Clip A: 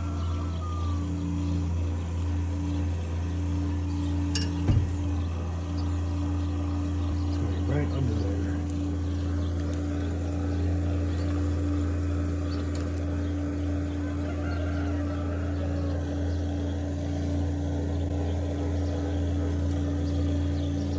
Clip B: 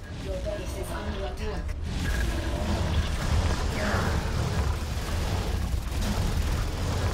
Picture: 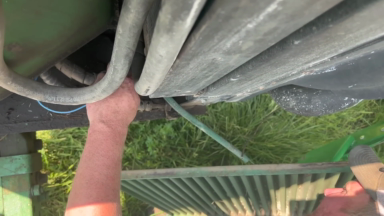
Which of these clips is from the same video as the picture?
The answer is A